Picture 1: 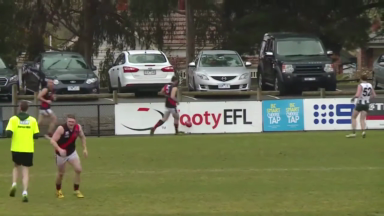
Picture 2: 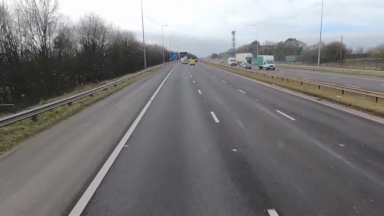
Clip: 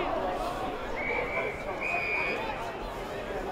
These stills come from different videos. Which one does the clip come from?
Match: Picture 1